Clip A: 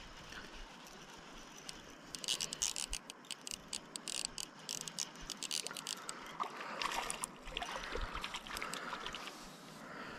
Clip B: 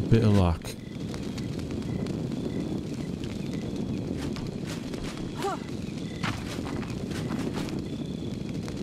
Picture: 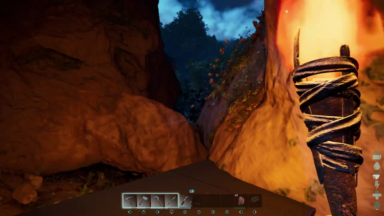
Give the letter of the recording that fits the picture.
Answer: B